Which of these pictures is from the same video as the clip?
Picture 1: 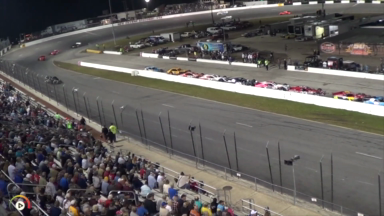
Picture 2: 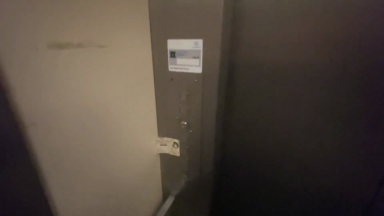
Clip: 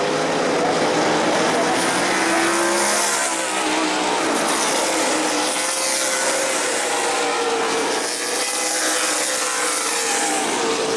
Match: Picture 1